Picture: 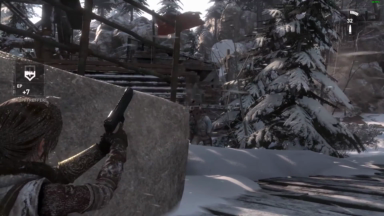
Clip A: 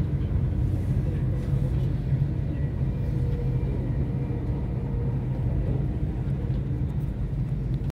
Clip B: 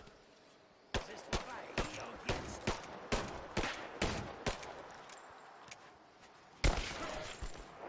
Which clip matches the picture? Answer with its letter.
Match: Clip B